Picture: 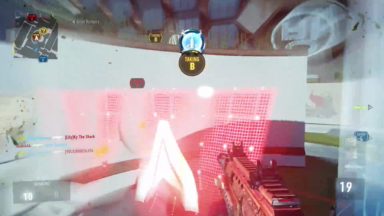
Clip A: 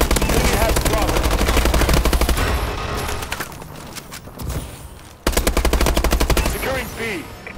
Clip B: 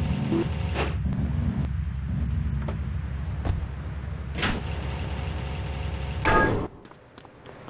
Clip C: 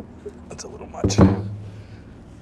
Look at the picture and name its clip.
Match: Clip A